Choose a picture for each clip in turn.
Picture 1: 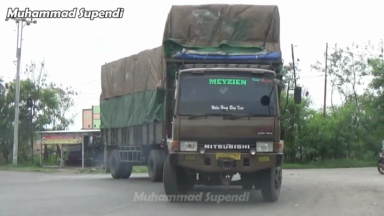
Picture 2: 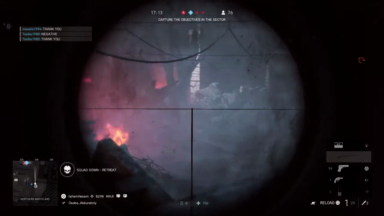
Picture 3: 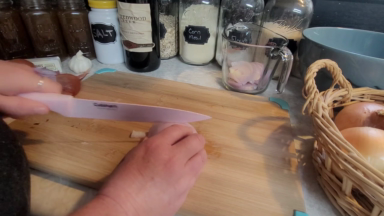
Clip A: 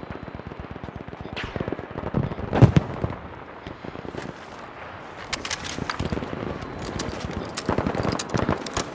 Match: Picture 2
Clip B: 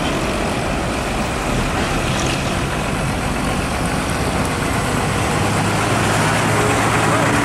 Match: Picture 1